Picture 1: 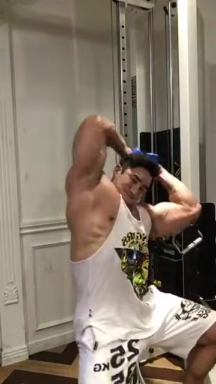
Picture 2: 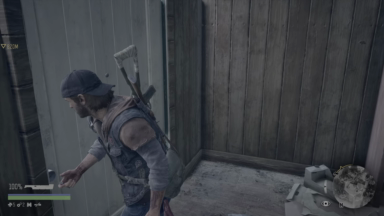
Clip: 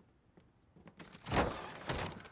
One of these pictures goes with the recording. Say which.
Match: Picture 2